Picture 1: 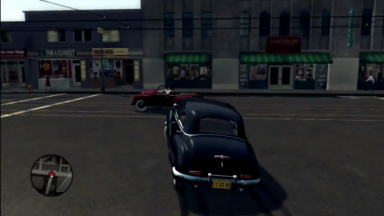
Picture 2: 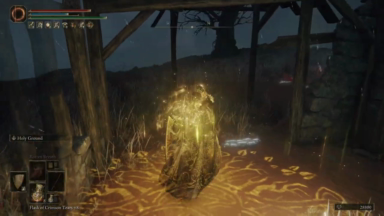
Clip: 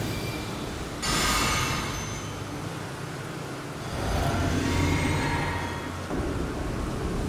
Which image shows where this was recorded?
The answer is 2